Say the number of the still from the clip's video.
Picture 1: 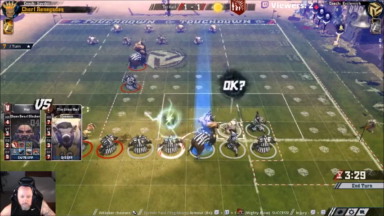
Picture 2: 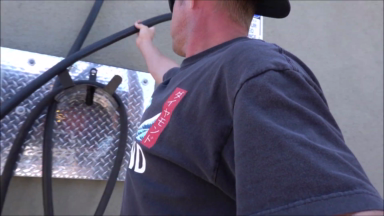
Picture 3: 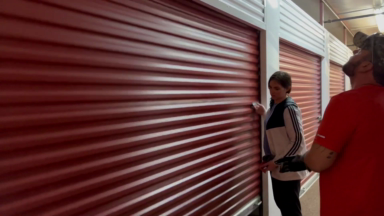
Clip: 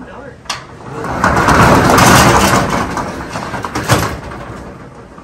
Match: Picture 3